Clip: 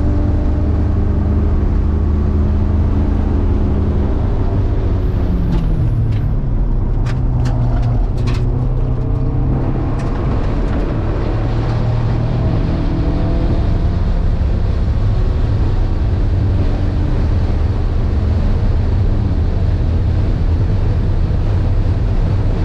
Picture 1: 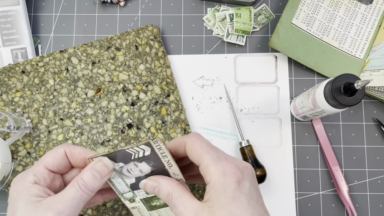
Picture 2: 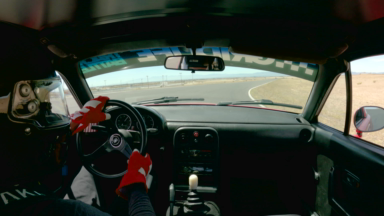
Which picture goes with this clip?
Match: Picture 2